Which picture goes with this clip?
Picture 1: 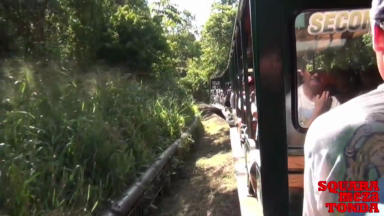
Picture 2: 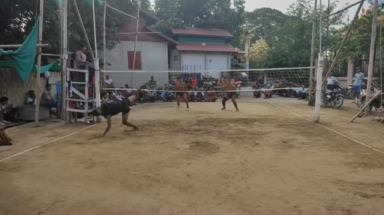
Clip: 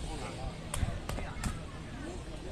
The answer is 2